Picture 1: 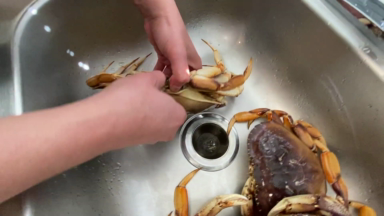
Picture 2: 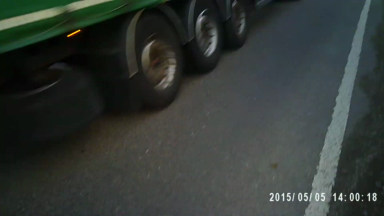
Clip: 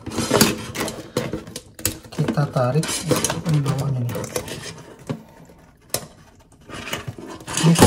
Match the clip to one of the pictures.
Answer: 1